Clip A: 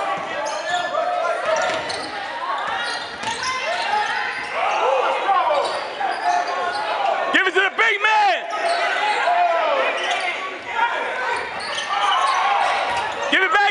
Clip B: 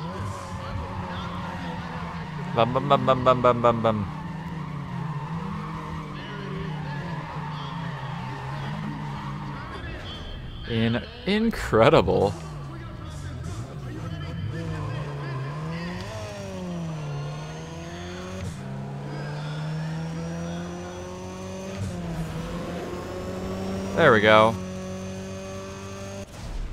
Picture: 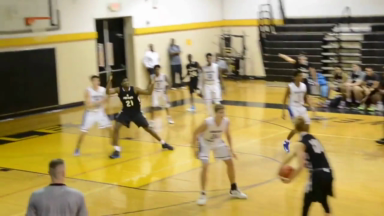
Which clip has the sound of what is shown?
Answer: A